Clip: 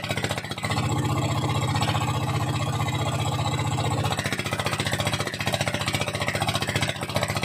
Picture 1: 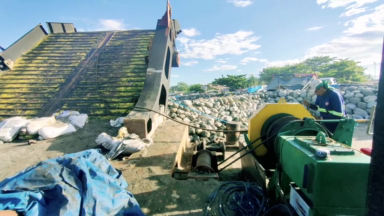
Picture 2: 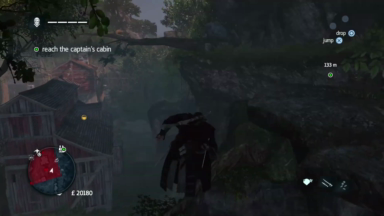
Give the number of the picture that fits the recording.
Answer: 1